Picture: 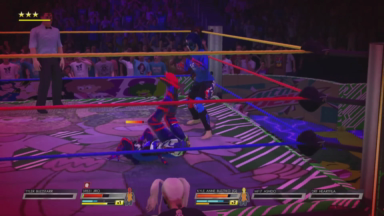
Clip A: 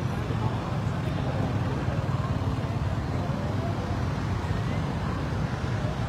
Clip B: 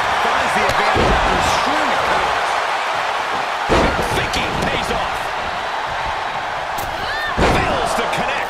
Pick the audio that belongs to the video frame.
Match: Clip B